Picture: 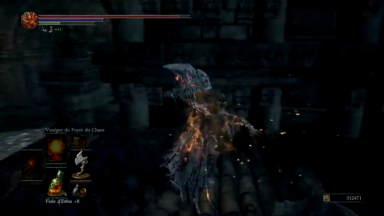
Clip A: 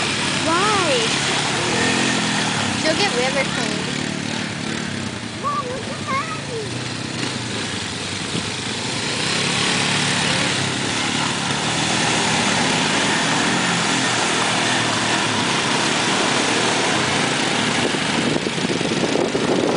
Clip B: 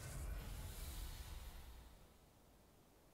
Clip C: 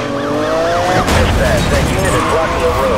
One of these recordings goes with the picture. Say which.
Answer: B